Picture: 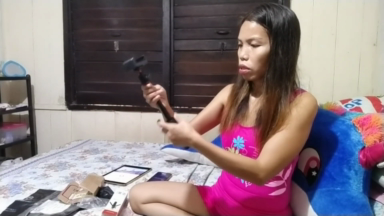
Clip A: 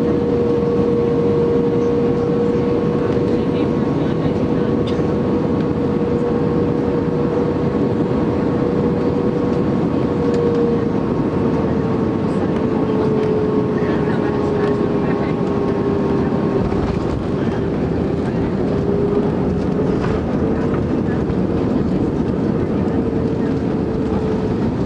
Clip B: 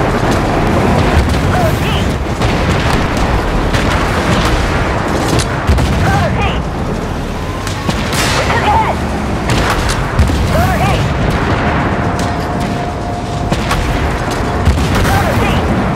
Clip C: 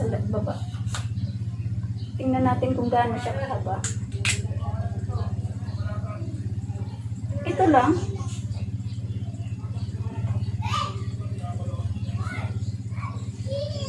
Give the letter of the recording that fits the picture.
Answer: C